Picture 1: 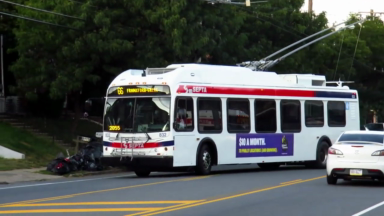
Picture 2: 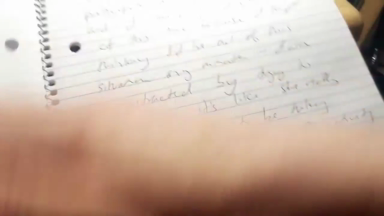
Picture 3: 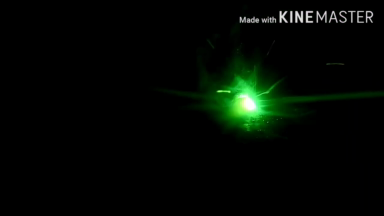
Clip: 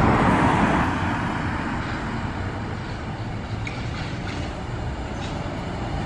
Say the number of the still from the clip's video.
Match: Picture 1